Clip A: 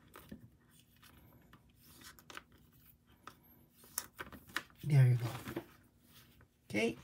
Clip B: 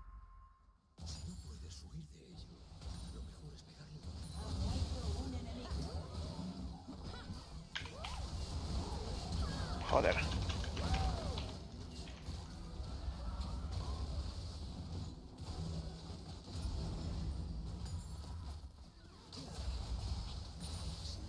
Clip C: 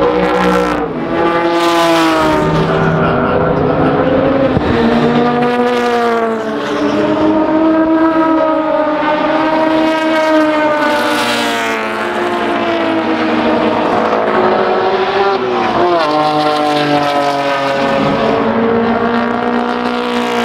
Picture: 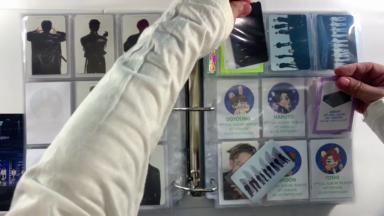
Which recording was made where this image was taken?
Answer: A